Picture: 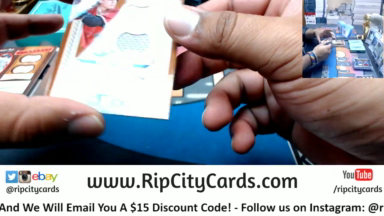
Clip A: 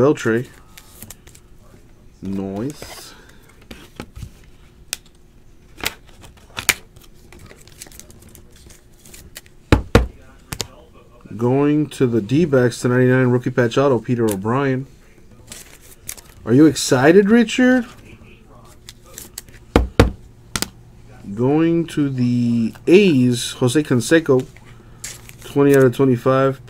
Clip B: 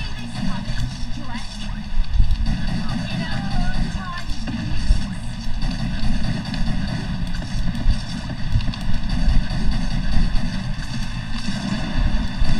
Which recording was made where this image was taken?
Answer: A